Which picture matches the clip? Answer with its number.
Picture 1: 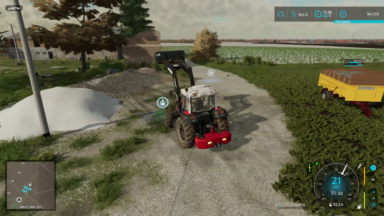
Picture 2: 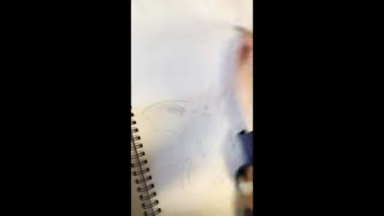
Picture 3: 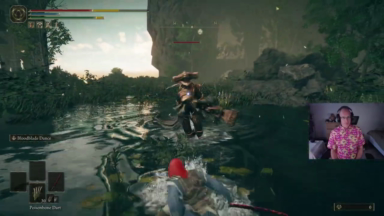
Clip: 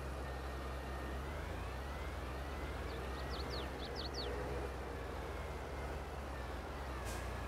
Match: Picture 1